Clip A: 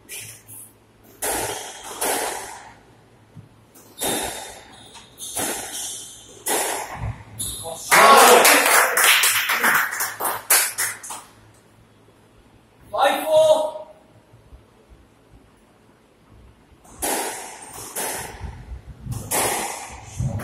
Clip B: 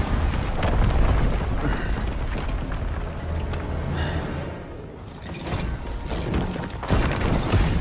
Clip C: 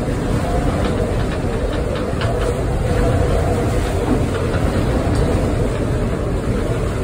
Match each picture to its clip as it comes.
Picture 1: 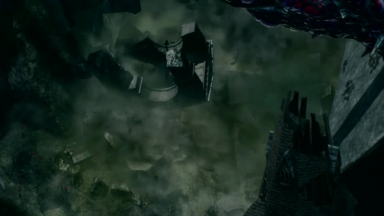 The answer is B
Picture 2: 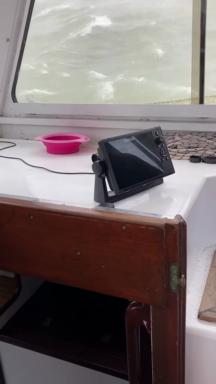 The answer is C